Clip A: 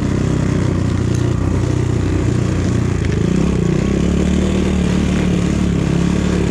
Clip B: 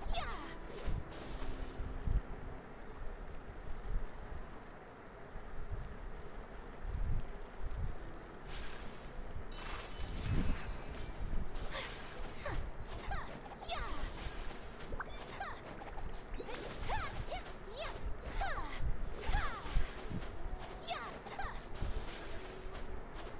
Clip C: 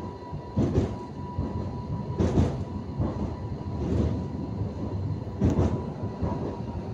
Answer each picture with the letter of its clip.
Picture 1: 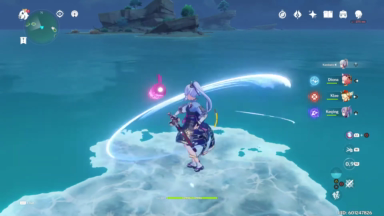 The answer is B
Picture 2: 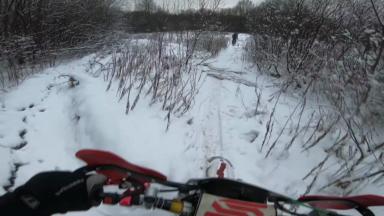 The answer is A